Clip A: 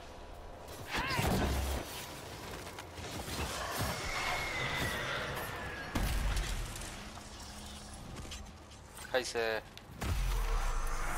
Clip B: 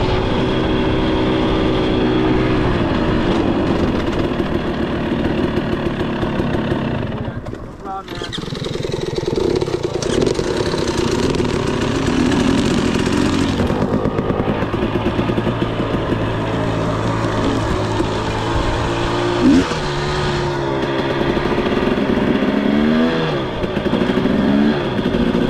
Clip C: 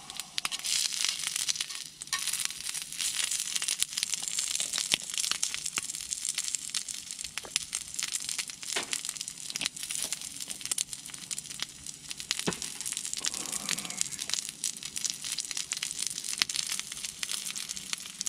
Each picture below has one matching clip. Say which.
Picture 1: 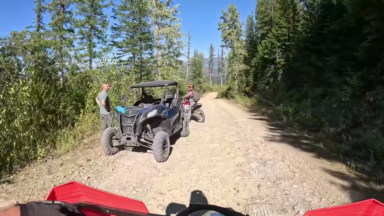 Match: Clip B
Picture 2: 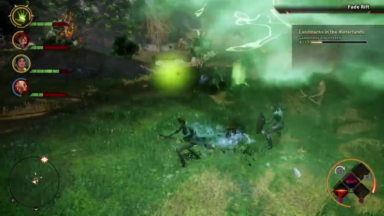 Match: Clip A